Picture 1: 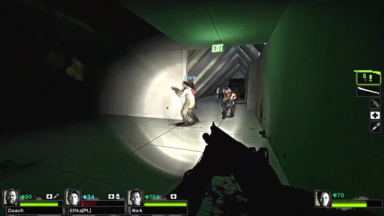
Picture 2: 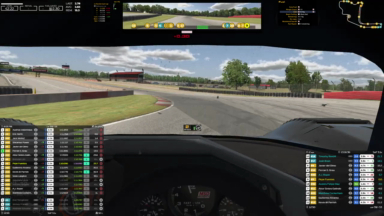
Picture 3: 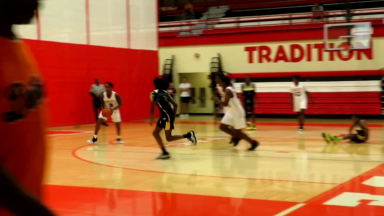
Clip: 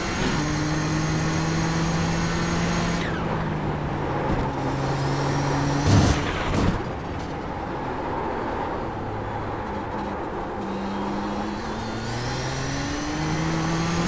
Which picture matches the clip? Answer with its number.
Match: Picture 2